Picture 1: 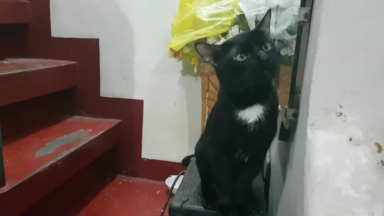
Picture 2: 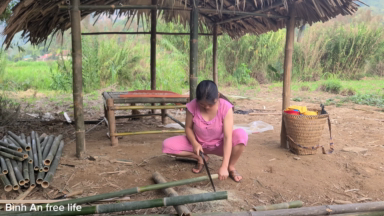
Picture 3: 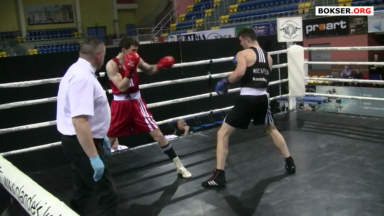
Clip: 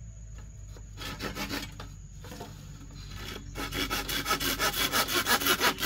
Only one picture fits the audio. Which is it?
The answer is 2